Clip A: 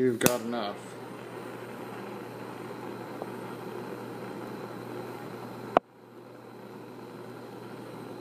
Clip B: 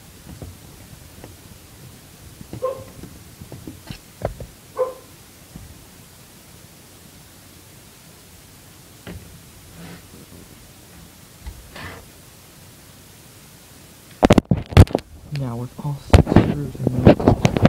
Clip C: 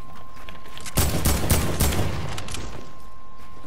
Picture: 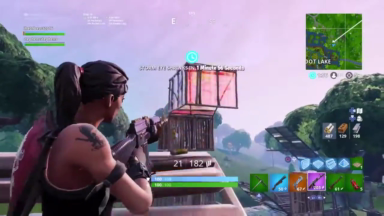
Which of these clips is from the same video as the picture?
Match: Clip C